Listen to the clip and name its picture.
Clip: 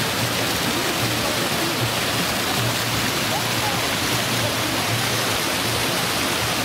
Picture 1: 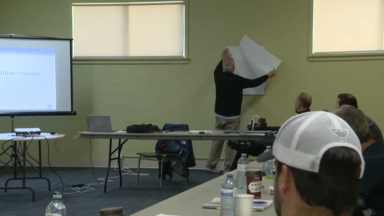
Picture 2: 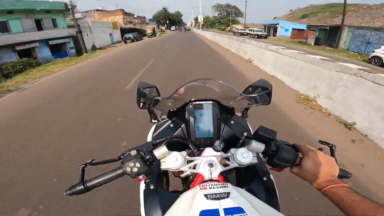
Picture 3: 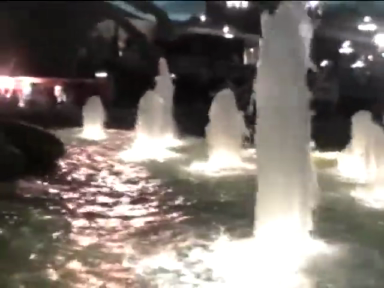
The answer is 3